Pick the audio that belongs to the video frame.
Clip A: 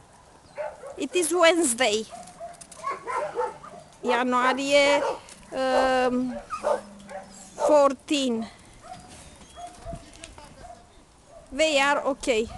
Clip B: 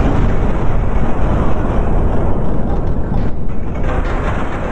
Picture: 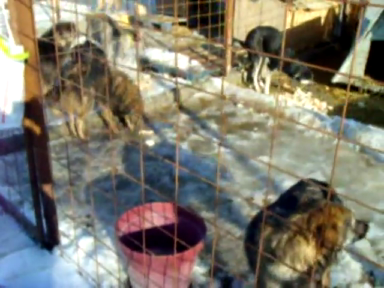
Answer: A